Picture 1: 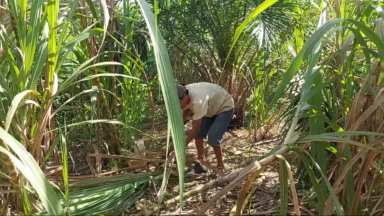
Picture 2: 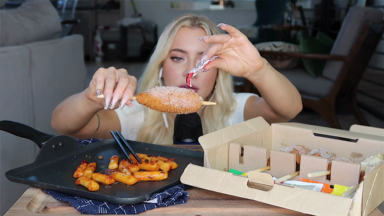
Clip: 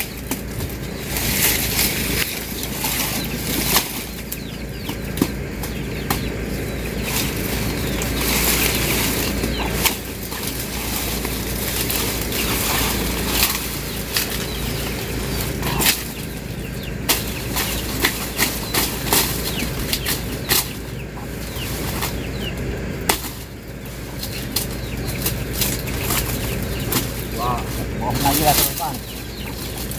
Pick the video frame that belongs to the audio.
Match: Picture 1